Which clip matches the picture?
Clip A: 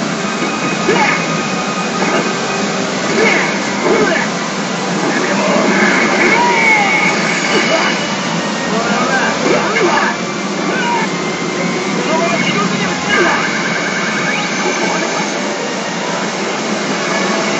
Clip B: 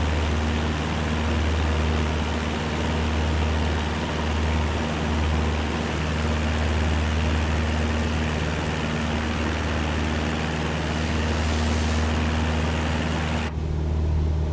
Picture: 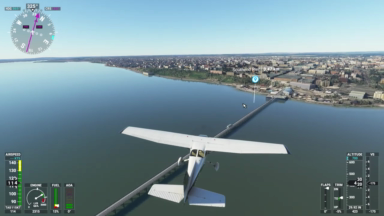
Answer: B